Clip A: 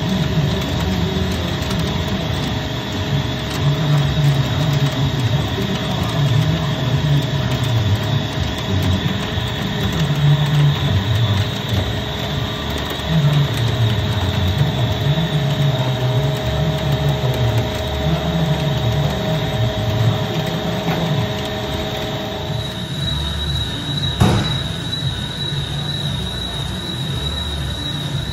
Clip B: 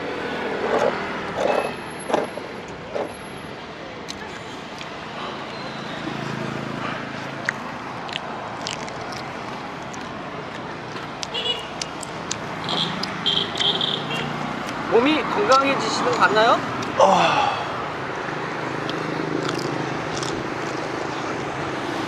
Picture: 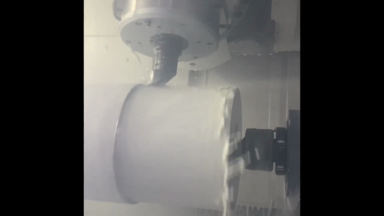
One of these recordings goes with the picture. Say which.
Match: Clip A